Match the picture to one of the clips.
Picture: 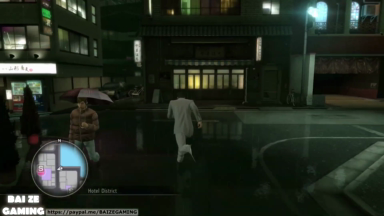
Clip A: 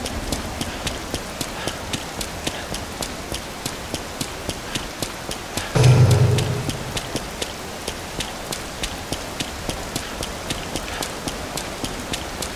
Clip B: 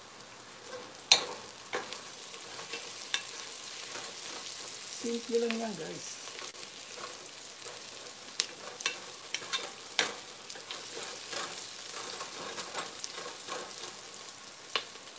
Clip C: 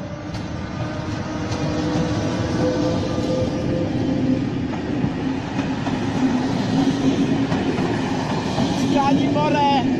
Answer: A